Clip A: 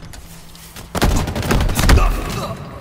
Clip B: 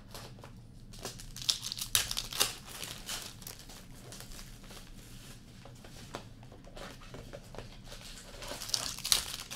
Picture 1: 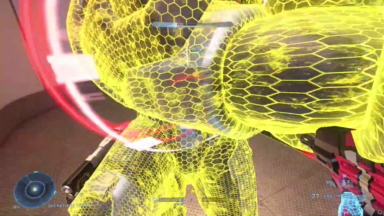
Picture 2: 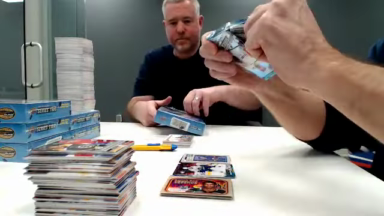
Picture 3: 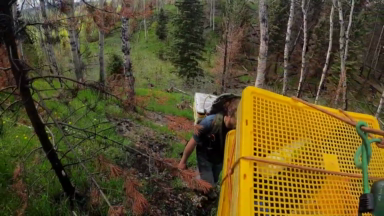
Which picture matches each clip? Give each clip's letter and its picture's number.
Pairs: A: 1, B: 2